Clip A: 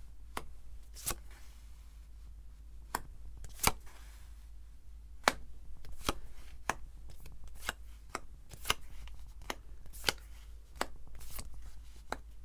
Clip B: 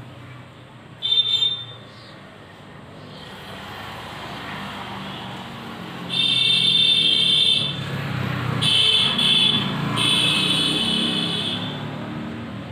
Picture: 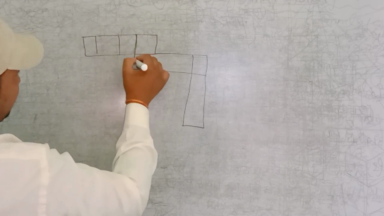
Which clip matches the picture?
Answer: B